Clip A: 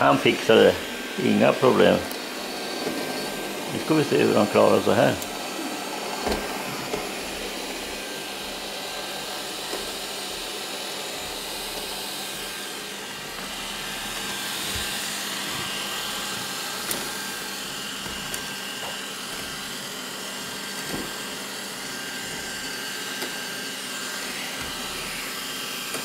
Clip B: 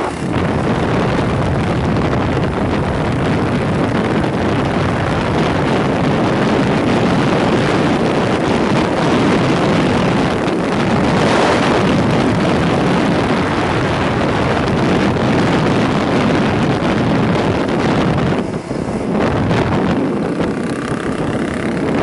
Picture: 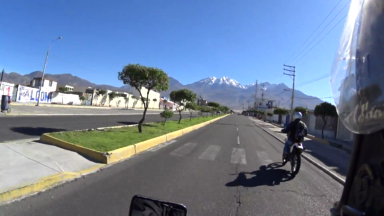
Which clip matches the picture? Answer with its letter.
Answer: B